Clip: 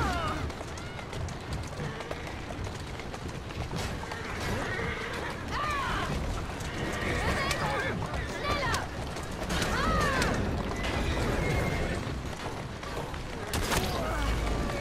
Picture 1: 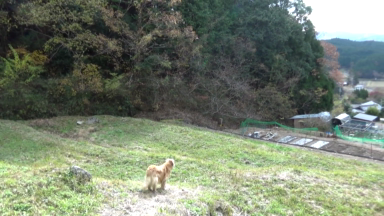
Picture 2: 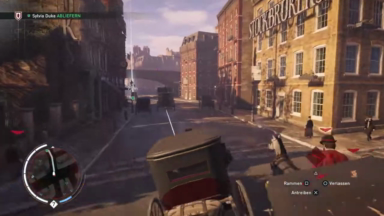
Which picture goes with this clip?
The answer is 2